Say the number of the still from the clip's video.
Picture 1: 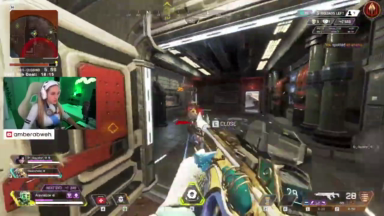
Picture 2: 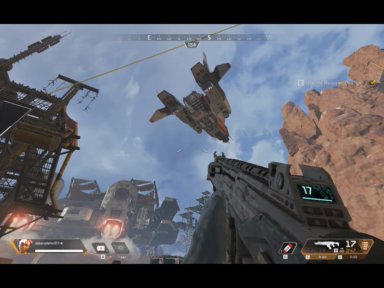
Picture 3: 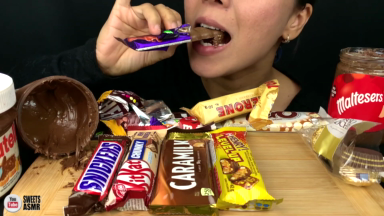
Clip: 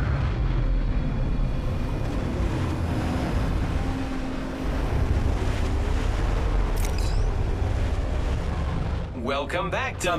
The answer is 2